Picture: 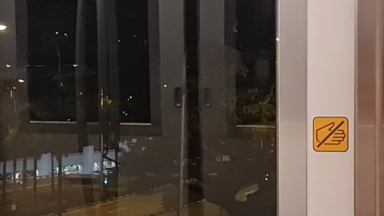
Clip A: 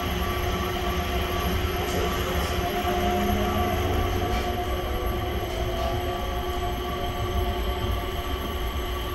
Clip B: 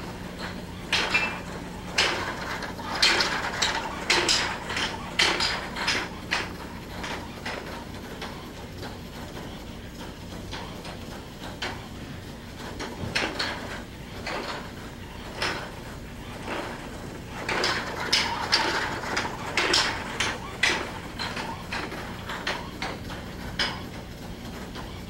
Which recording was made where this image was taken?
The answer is A